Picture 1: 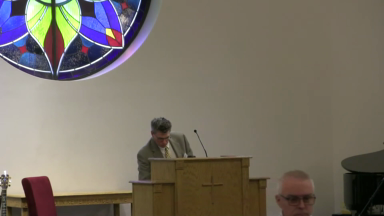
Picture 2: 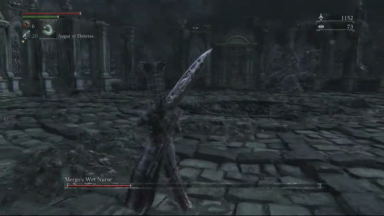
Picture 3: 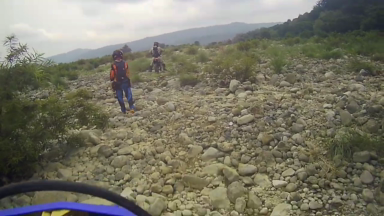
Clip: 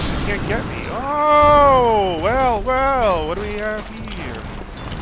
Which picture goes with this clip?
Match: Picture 2